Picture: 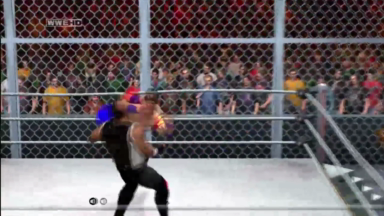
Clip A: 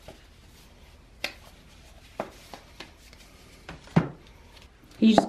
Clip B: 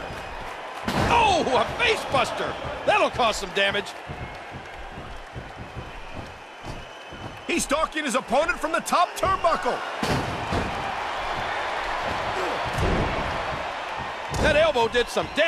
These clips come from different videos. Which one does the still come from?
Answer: B